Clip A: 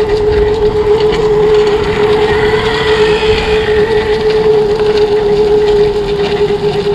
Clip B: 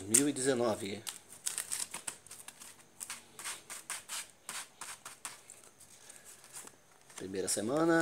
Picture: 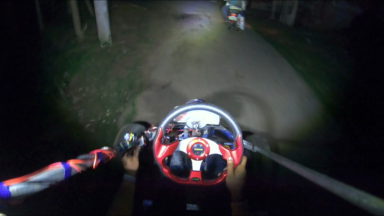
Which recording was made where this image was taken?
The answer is A